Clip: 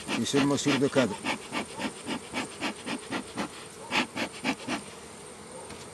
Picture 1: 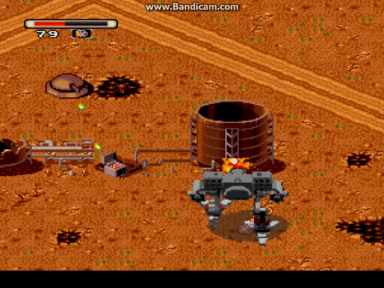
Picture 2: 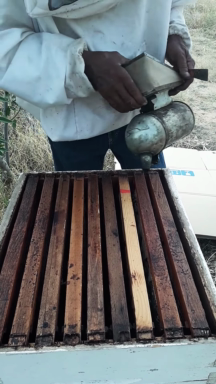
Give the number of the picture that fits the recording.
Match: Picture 2